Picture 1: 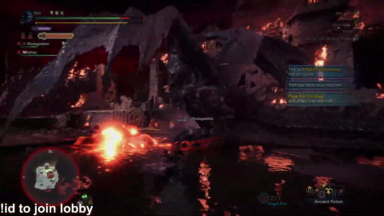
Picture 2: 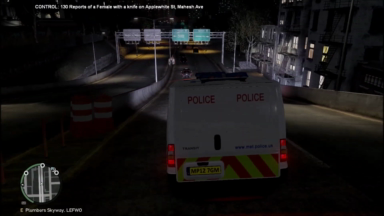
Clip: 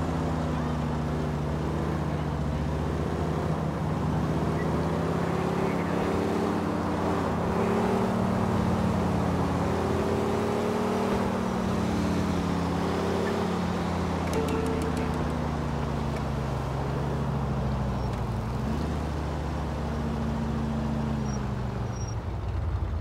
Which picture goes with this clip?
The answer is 2